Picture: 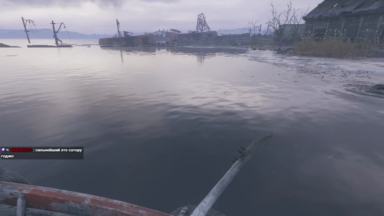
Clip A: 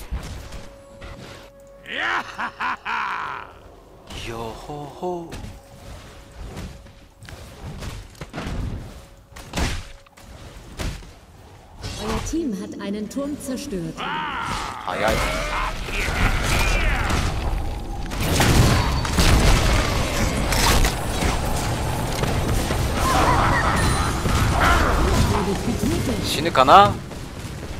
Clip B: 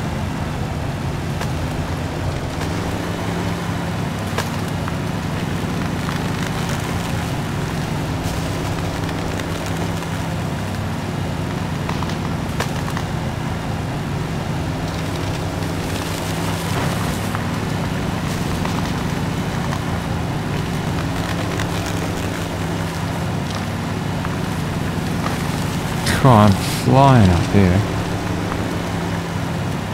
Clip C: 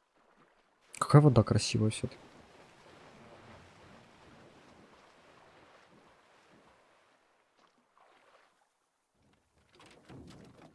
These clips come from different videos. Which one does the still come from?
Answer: C